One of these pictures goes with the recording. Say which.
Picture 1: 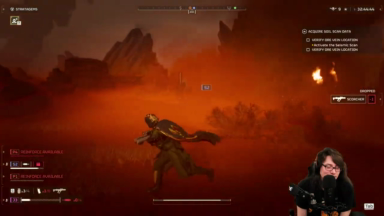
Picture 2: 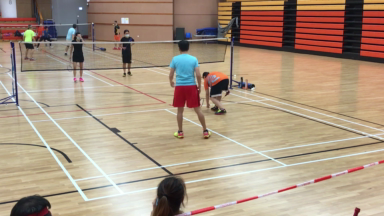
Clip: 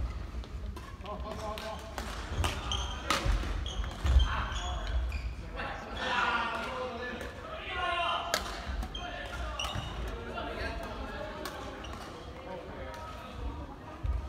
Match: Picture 2